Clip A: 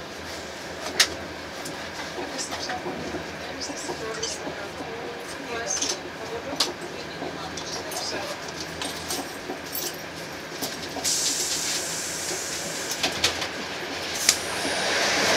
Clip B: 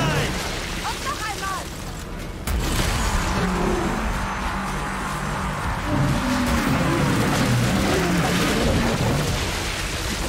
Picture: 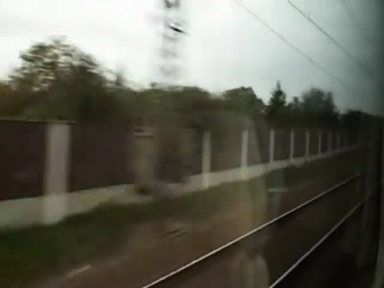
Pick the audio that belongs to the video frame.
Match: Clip A